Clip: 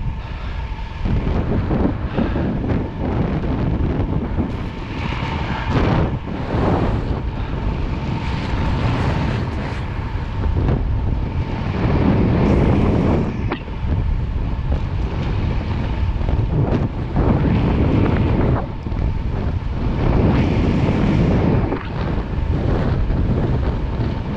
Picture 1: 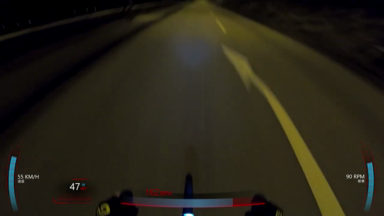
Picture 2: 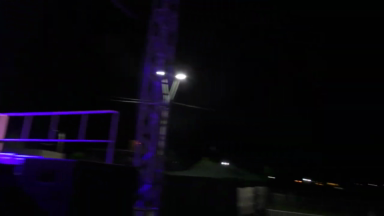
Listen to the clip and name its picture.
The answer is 1